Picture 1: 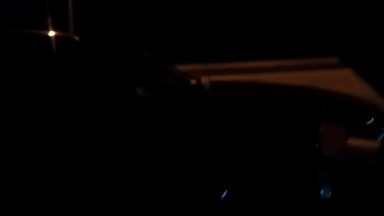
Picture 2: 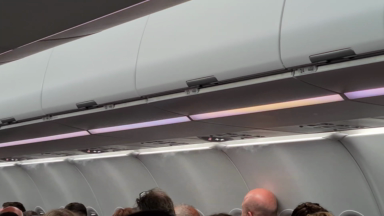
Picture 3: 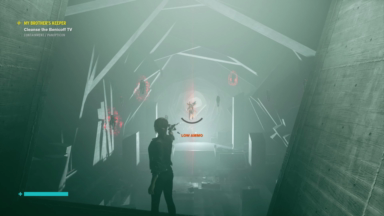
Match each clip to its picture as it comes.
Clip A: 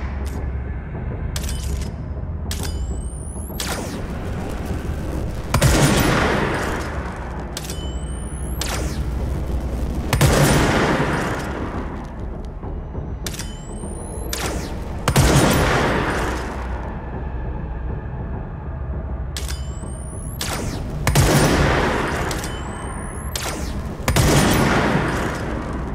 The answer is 3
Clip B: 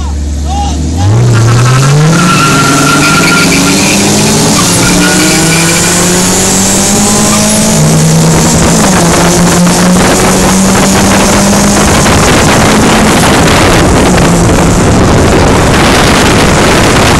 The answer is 1